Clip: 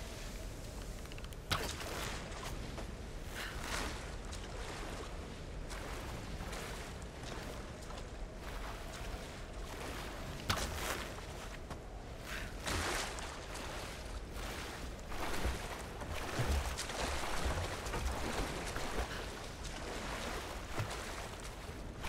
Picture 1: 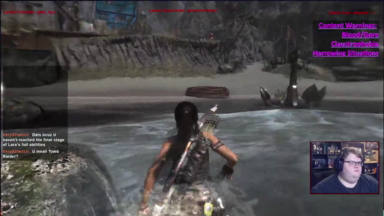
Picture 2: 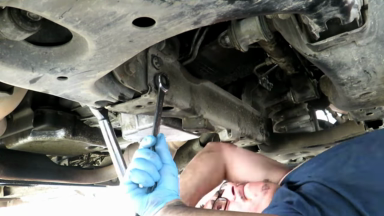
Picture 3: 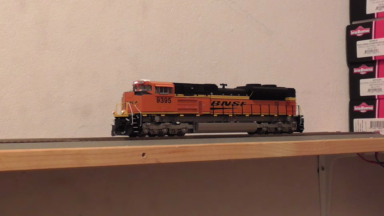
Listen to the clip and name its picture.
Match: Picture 1